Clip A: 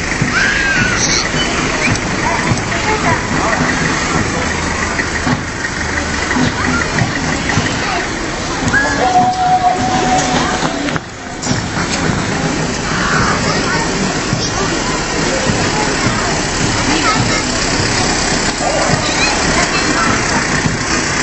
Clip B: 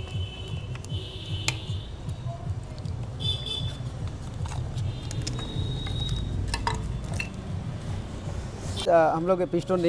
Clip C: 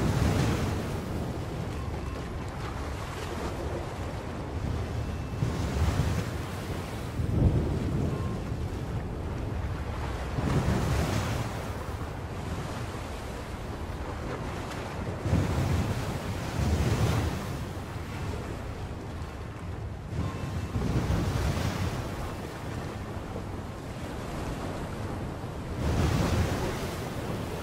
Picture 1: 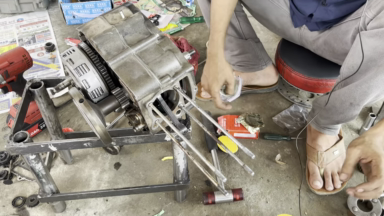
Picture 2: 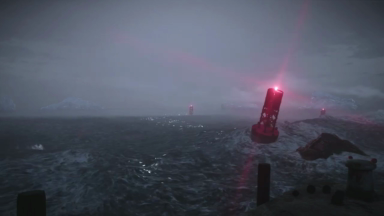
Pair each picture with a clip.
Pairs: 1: B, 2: C